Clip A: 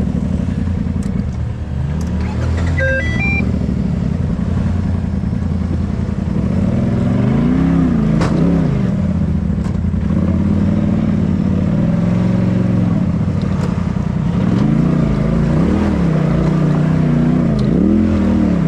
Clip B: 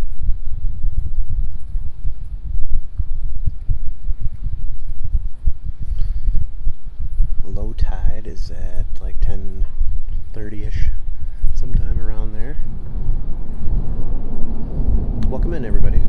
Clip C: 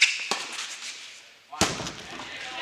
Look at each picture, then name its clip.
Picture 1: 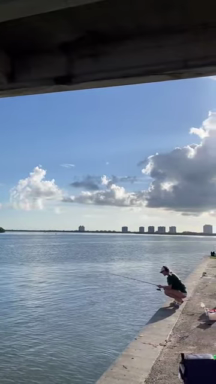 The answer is B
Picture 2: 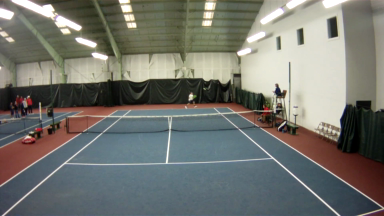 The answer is C